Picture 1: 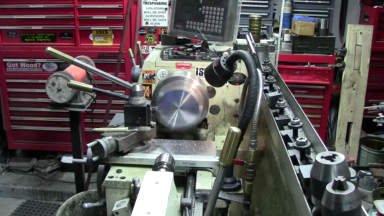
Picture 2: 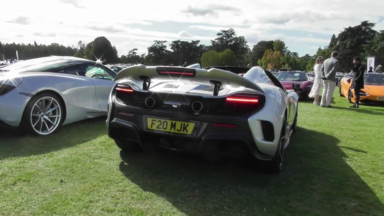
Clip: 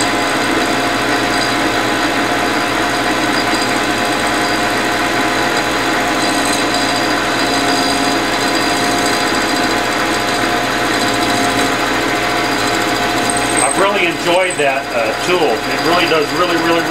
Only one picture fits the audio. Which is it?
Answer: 1